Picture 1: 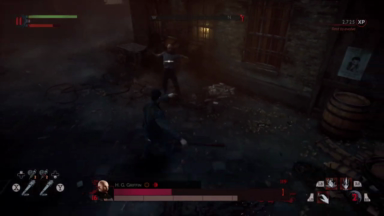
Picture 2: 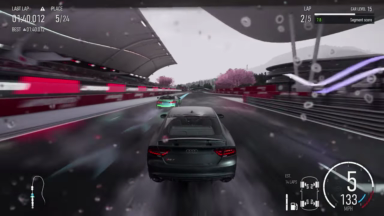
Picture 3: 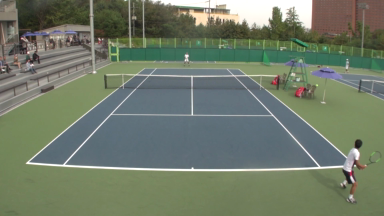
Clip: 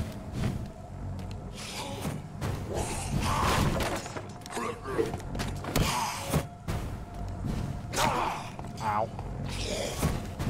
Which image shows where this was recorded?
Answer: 1